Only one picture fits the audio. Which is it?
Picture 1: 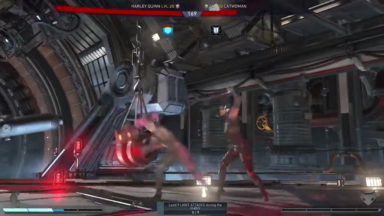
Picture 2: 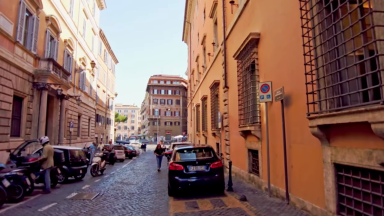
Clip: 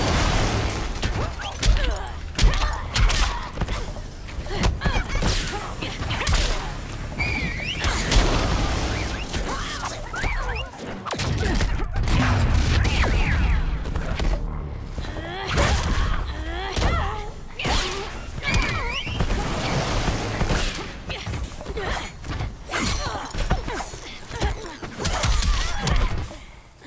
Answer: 1